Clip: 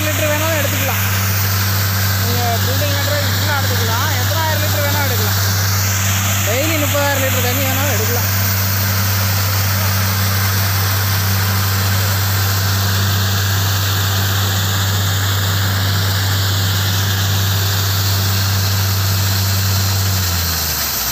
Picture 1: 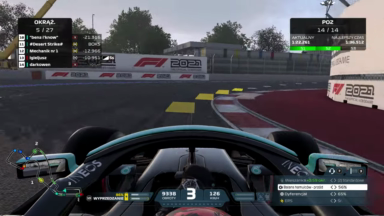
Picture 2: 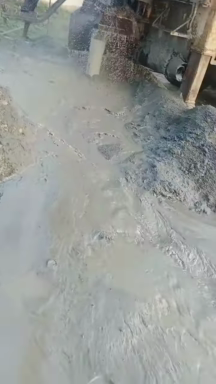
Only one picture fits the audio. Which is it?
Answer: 2